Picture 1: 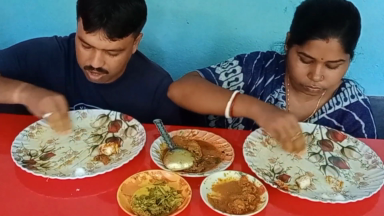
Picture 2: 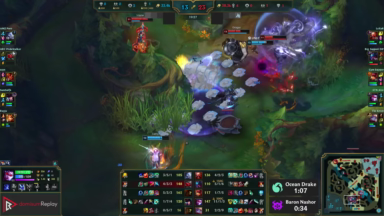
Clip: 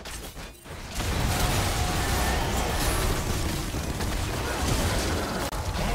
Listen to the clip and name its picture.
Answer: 2